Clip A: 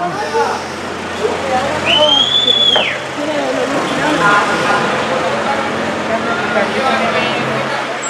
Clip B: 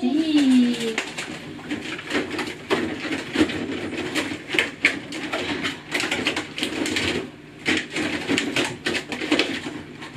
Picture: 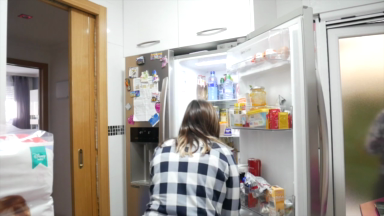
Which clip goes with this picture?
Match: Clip B